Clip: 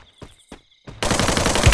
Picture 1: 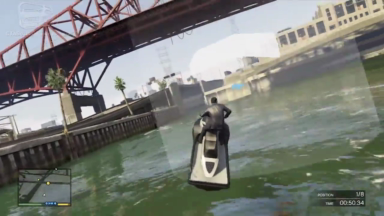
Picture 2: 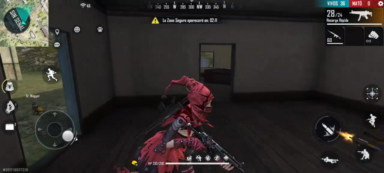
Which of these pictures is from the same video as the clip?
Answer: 2